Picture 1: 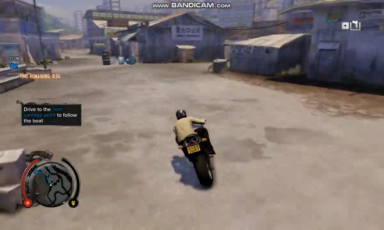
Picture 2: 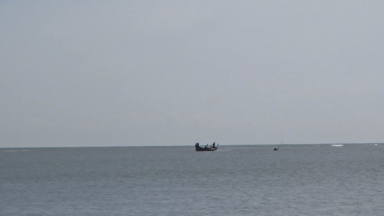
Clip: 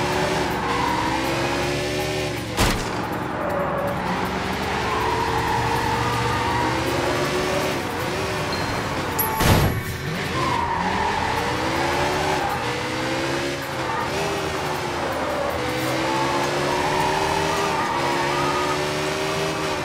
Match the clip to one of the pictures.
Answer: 1